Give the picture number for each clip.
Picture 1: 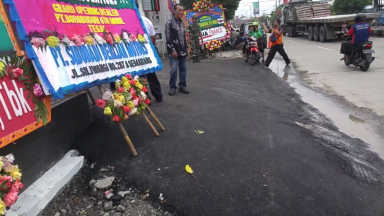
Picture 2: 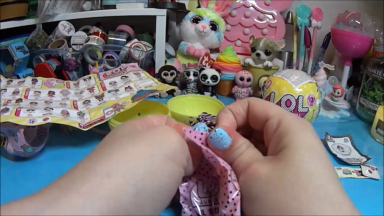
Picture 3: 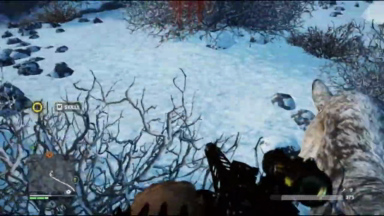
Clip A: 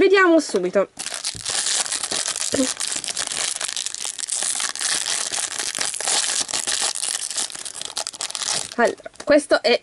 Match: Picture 2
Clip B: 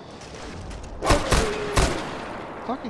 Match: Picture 3